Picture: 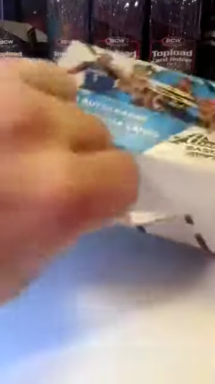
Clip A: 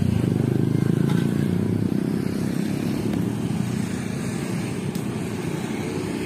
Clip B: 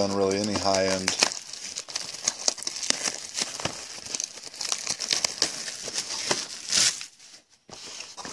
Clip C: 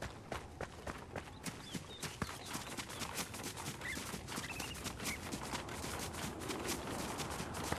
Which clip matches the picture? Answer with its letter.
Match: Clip B